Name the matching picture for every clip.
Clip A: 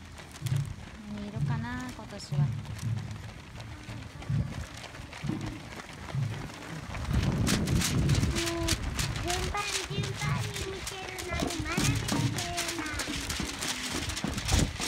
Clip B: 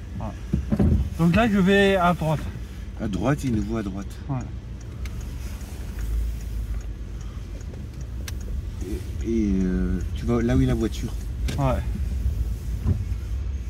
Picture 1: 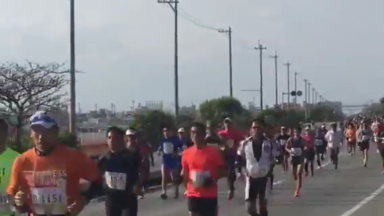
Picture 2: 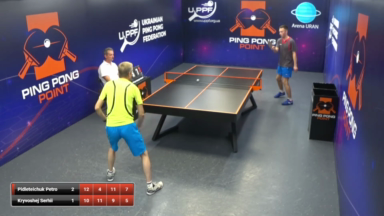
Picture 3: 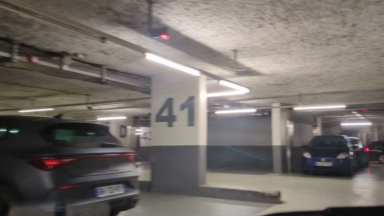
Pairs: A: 1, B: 3